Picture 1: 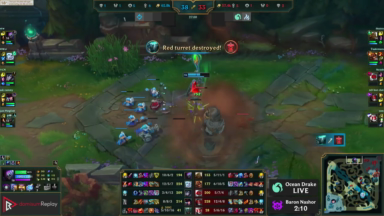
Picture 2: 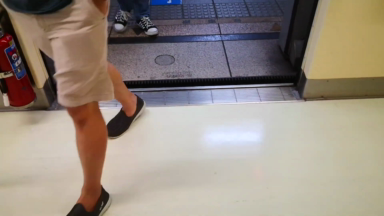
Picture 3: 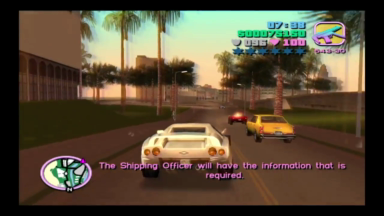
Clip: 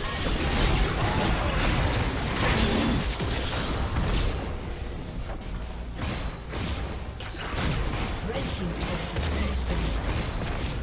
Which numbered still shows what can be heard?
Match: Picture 1